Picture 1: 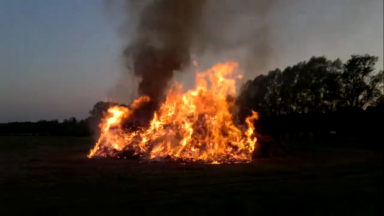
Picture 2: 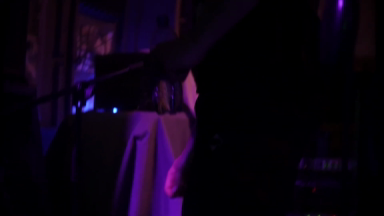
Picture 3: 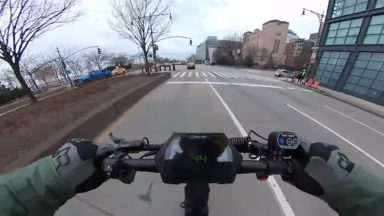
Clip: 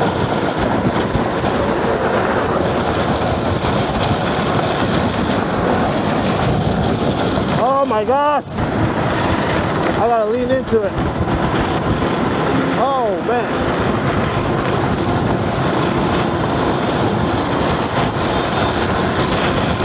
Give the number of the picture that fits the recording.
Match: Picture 3